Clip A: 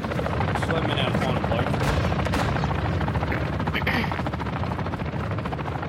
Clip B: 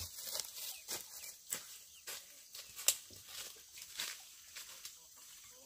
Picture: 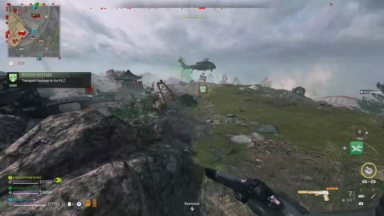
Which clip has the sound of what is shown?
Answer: A